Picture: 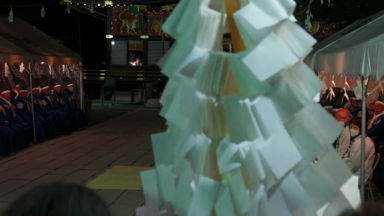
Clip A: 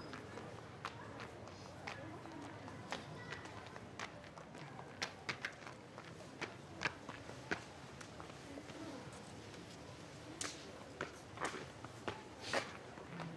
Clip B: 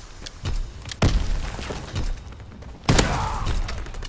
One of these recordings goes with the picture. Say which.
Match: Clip A